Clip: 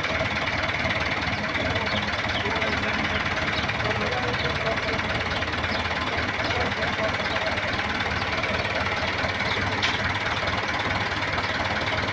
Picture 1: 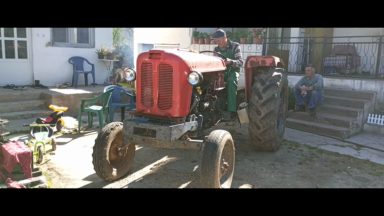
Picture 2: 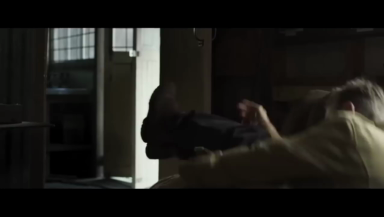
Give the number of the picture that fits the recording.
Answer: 1